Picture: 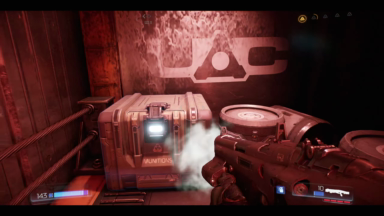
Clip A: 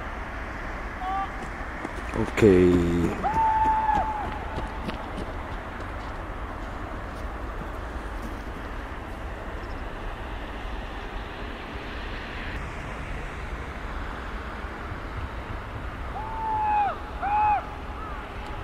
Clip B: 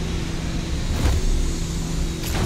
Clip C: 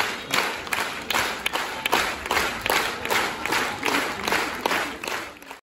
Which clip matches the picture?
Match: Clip B